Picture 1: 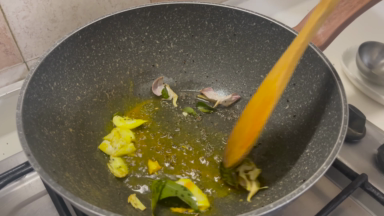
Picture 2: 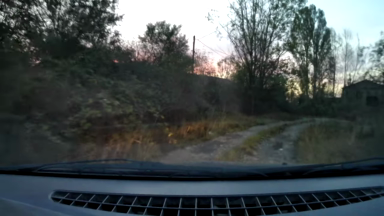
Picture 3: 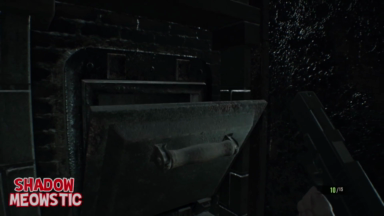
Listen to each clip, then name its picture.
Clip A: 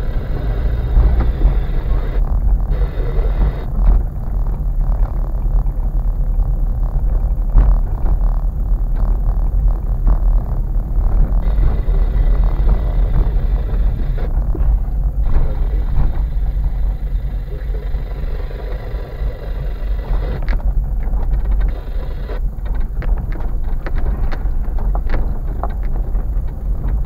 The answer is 2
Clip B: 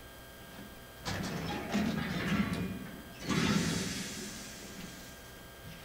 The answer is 3